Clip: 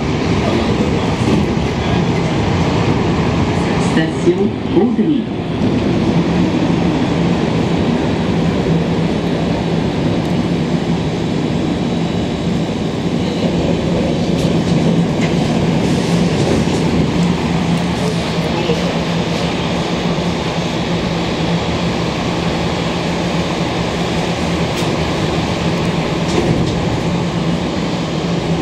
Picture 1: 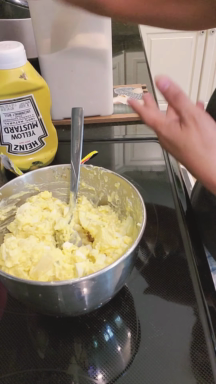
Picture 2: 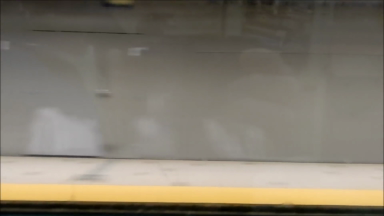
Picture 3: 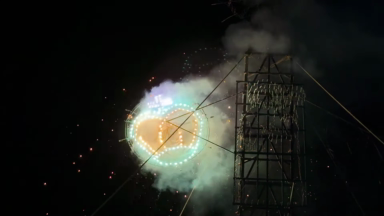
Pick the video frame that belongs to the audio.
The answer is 2